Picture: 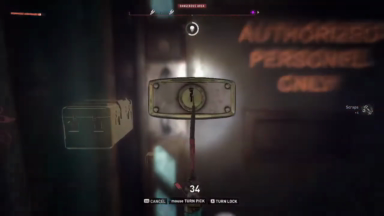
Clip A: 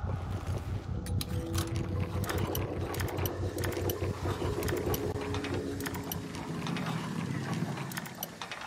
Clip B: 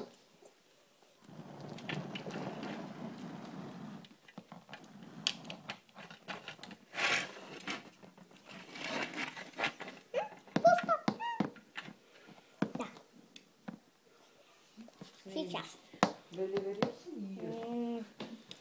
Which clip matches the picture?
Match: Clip A